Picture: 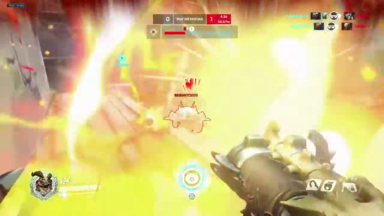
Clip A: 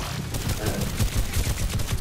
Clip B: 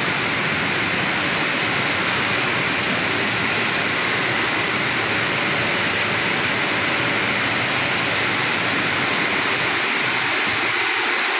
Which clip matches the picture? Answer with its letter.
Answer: A